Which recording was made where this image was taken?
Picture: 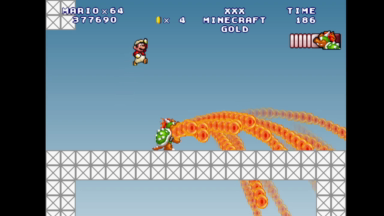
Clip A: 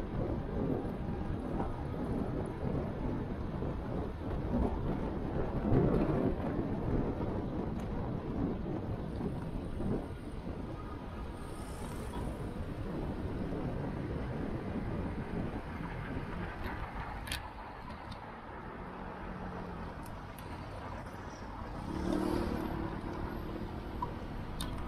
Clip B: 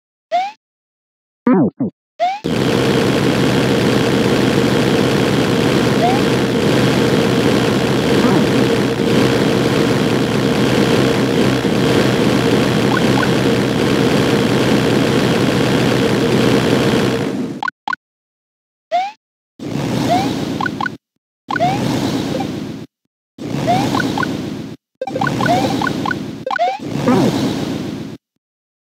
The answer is B